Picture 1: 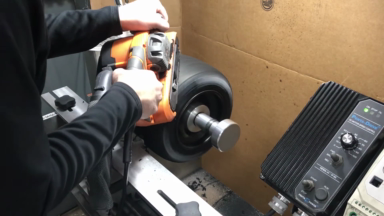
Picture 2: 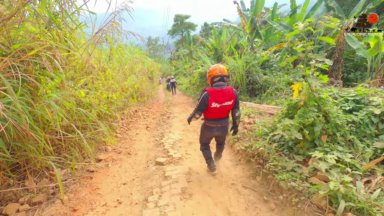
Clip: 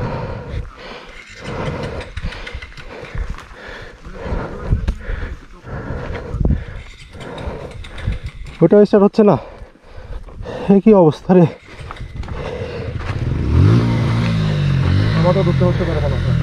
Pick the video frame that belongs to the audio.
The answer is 2